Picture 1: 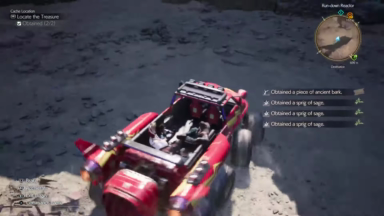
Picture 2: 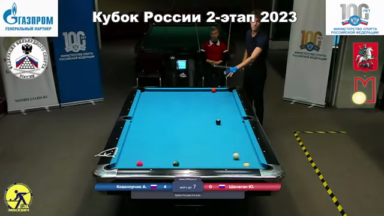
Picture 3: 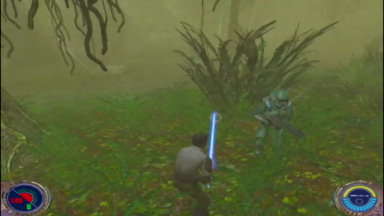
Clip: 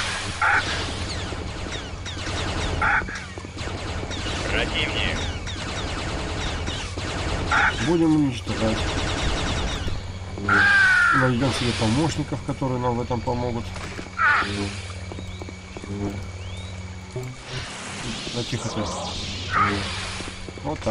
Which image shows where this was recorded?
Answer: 3